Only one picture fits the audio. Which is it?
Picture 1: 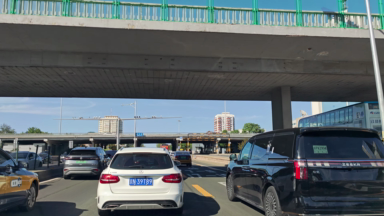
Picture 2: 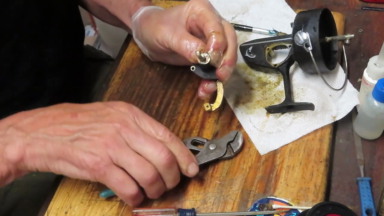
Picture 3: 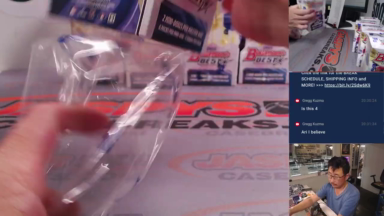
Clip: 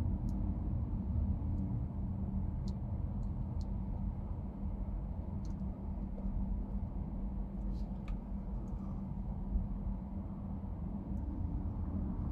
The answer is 1